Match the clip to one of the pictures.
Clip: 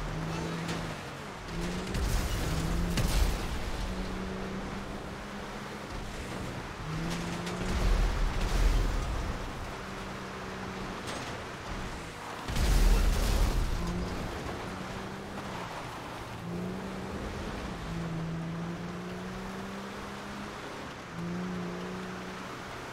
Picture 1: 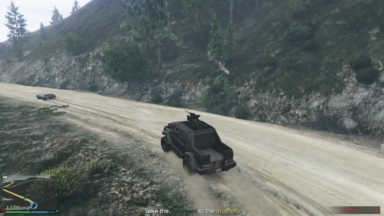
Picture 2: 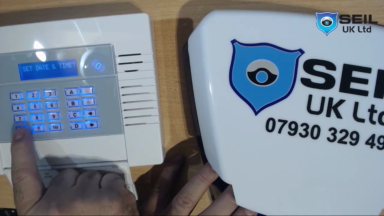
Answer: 1